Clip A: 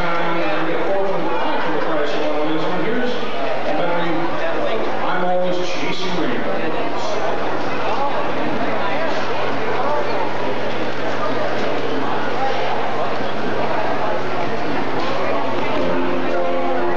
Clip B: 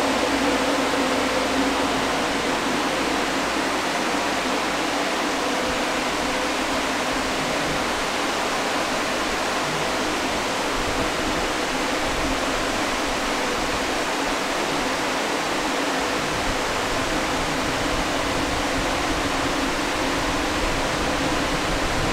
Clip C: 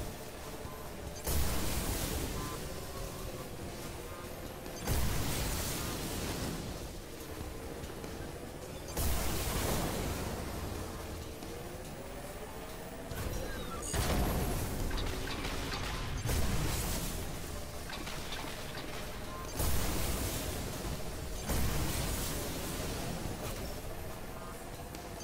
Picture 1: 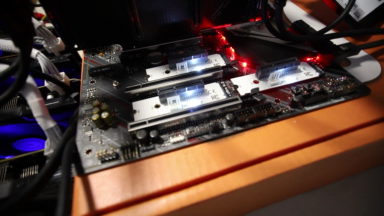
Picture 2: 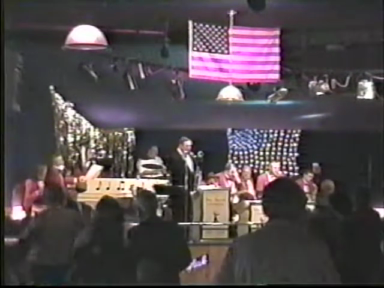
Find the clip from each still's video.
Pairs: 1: B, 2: A